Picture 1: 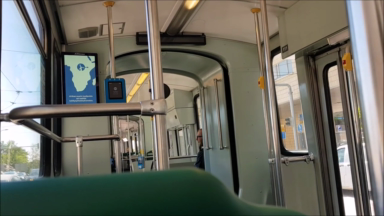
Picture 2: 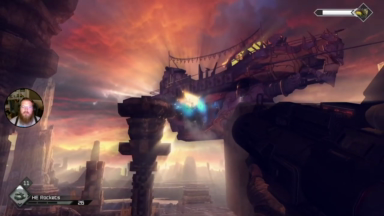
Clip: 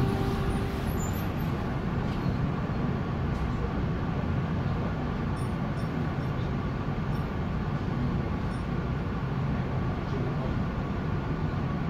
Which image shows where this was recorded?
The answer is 1